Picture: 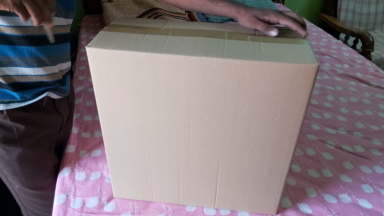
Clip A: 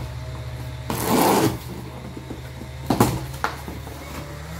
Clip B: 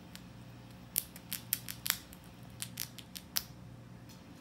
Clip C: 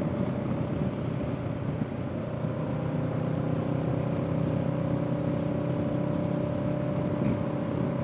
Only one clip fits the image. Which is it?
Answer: A